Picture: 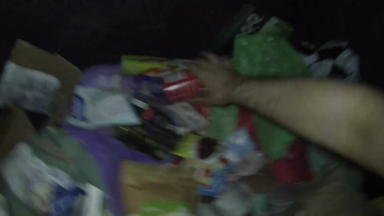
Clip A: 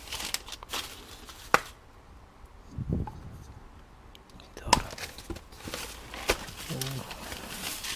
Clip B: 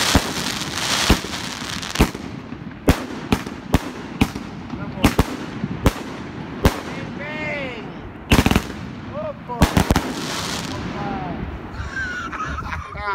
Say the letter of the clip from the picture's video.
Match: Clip A